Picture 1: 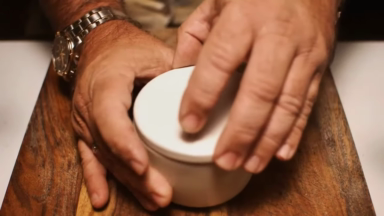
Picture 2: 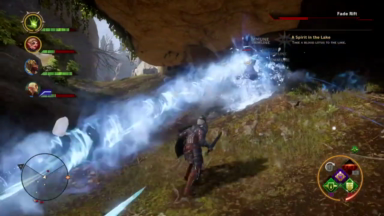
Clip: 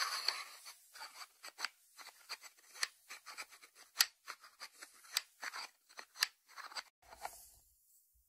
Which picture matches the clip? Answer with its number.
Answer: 1